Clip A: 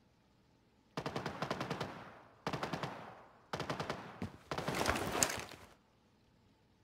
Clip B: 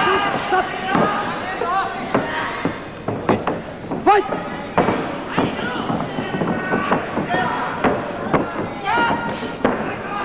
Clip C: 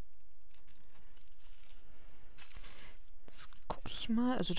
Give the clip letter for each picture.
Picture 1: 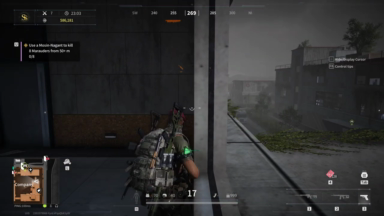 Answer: A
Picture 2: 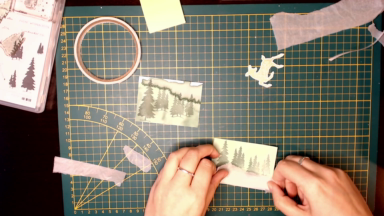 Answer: C